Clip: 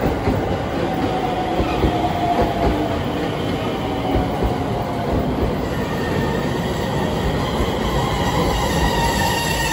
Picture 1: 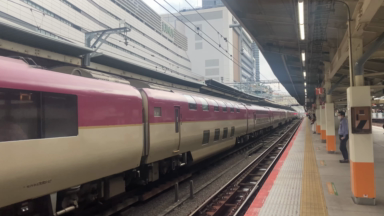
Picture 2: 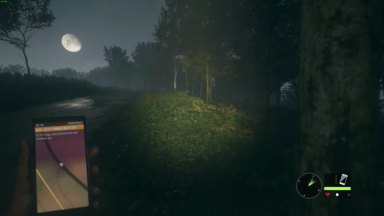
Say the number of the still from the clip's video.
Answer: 1